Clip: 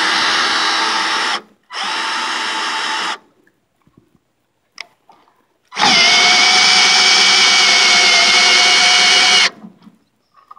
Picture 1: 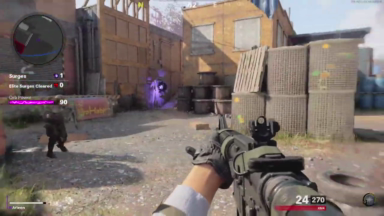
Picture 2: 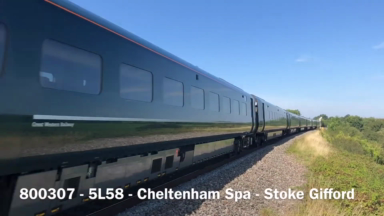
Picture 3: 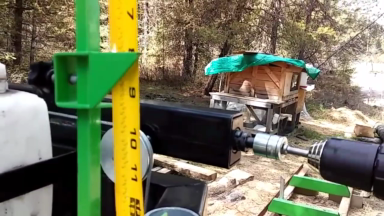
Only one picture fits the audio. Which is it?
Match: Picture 3